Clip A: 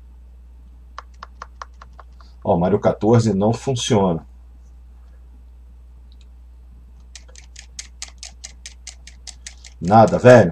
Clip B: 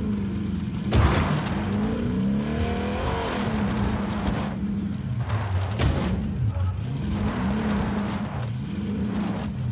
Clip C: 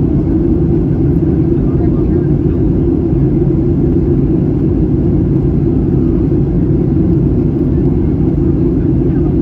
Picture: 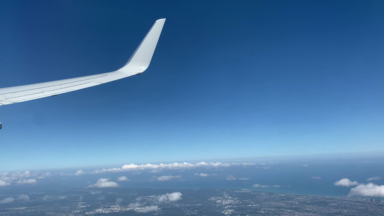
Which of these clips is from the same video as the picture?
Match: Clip C